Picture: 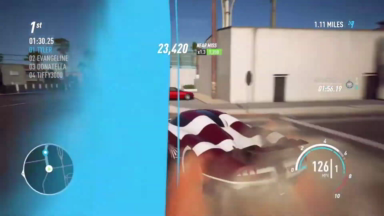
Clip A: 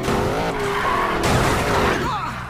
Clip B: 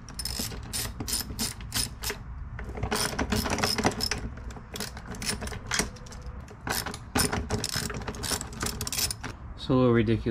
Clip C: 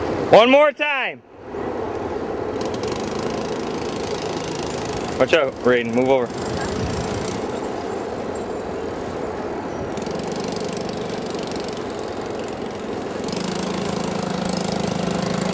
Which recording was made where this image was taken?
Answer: A